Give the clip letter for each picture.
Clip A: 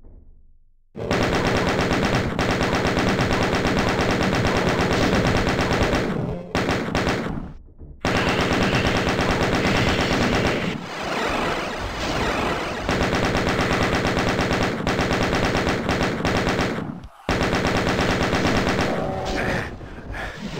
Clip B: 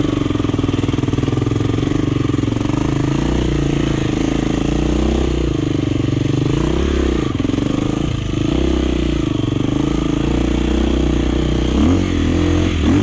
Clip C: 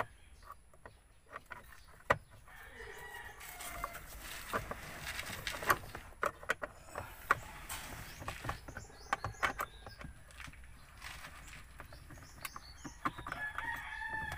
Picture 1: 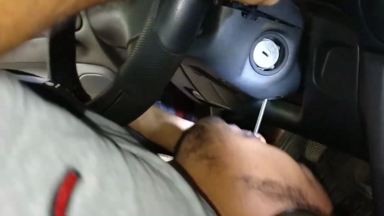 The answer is C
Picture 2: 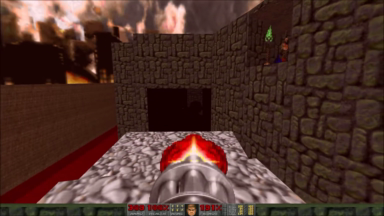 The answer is A